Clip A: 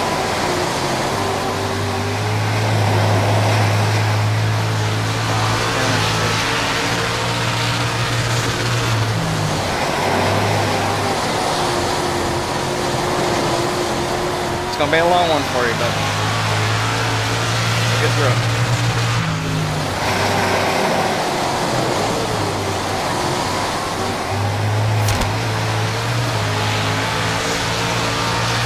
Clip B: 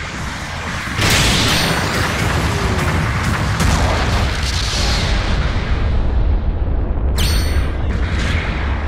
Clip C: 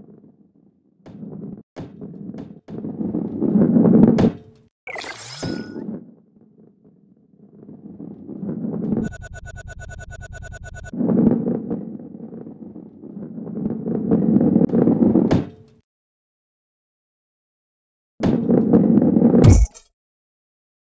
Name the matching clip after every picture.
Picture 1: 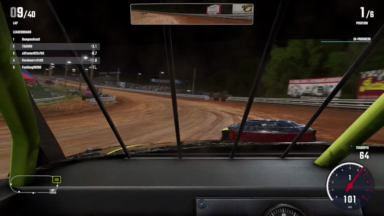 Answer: A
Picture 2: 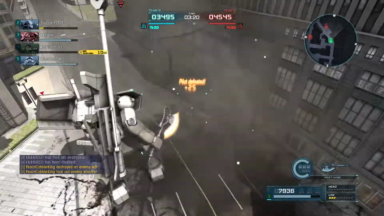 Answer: B